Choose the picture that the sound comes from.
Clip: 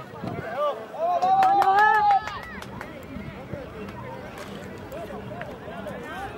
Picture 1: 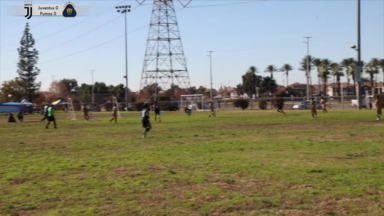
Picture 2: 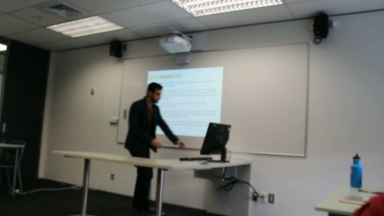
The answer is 1